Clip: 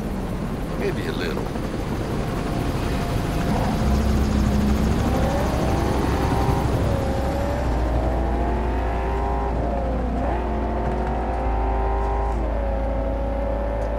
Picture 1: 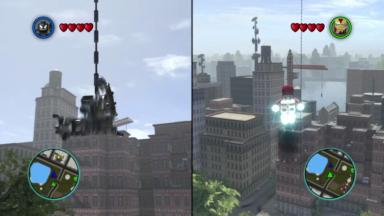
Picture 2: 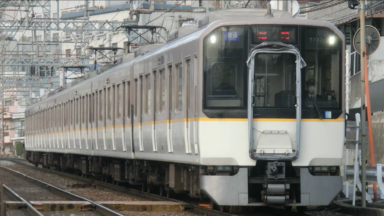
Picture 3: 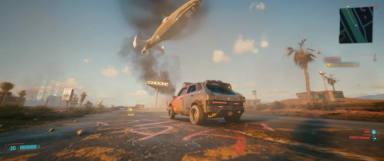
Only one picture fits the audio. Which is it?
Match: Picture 3